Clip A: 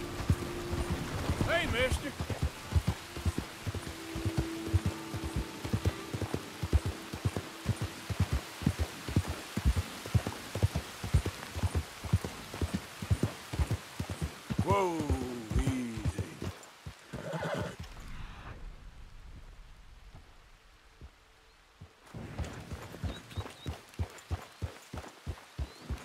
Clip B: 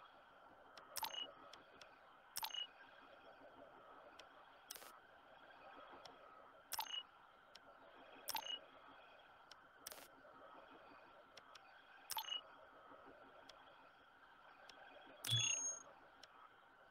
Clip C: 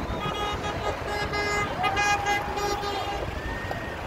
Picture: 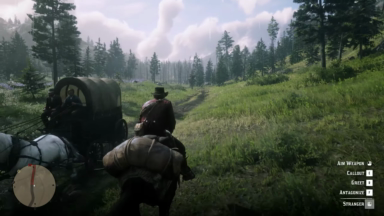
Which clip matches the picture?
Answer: A